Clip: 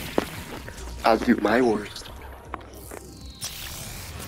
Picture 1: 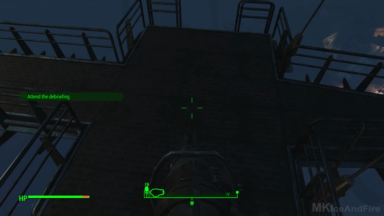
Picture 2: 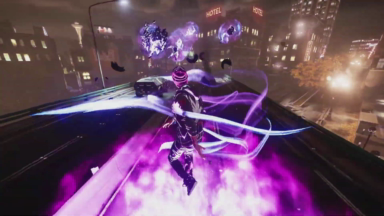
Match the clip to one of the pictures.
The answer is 2